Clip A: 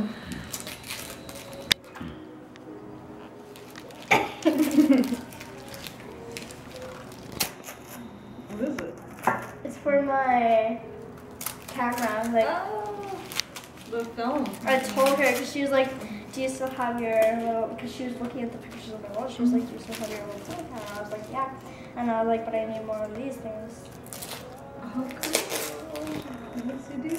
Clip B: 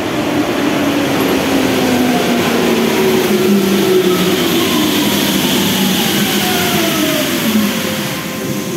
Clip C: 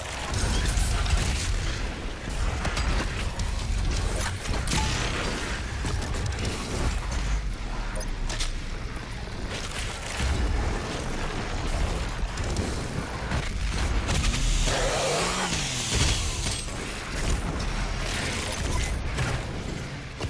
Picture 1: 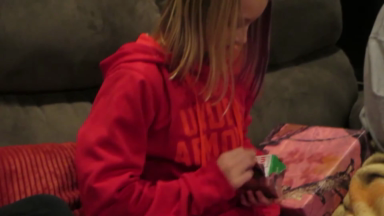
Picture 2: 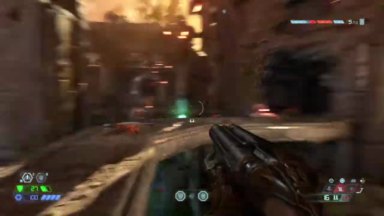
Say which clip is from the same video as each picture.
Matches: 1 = A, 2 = C